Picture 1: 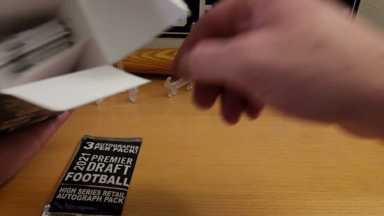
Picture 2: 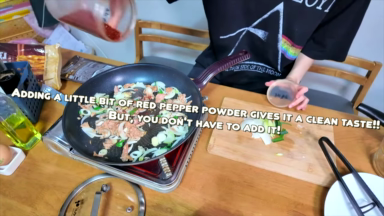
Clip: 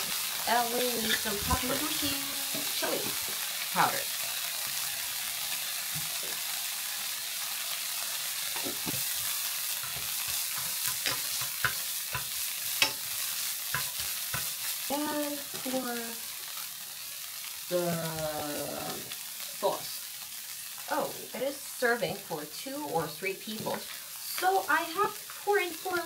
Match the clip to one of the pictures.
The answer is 2